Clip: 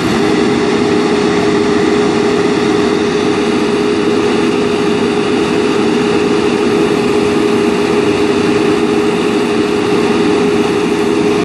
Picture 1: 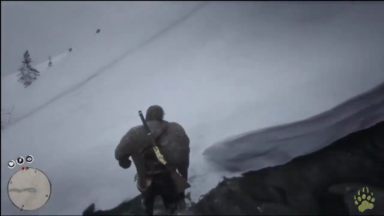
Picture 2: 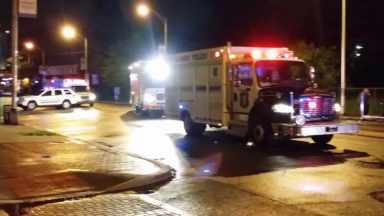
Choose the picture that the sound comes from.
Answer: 2